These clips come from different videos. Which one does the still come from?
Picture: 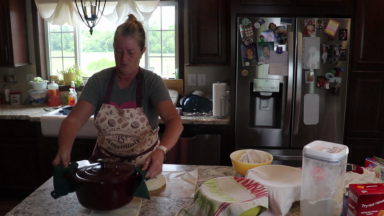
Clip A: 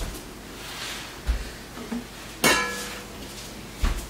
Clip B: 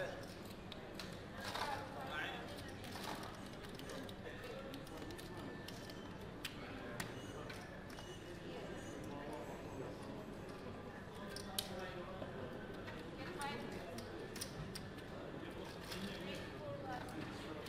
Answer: A